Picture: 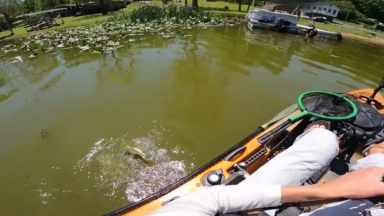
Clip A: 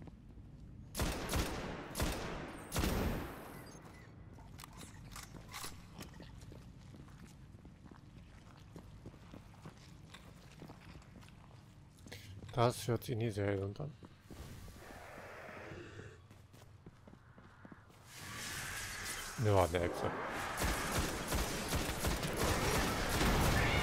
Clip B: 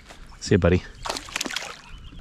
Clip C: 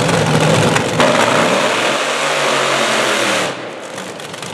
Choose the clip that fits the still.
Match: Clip B